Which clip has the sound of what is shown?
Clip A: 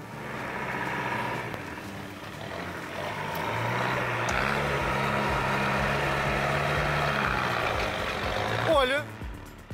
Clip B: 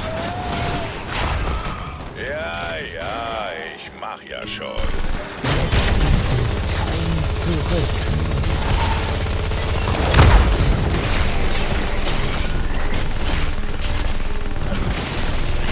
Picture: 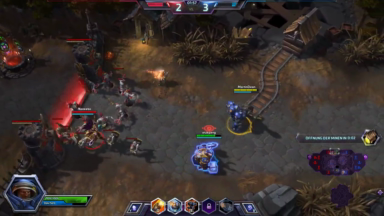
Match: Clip B